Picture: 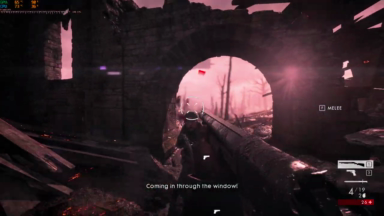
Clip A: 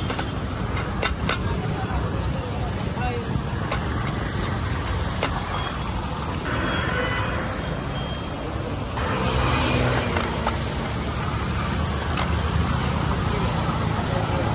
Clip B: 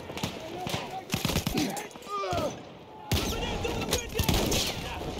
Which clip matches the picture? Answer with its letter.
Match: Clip B